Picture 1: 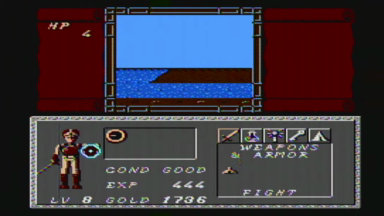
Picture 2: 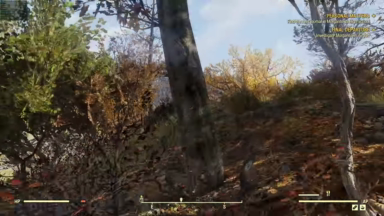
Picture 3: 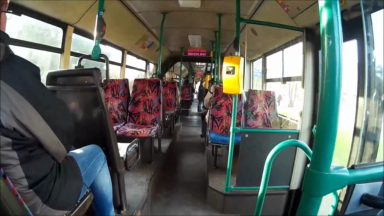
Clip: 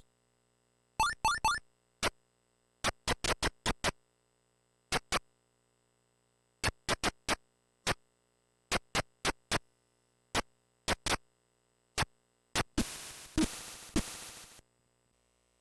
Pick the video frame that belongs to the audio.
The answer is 1